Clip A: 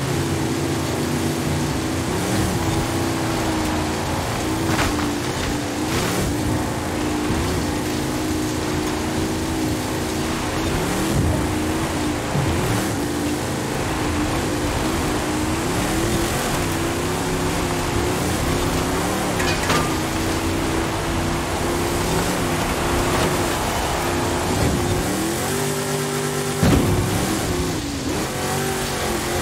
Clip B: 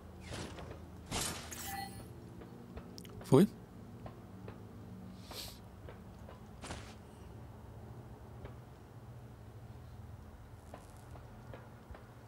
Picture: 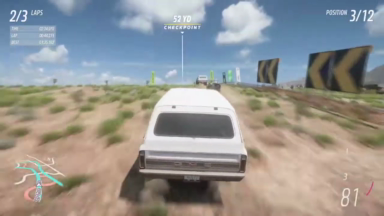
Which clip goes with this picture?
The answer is A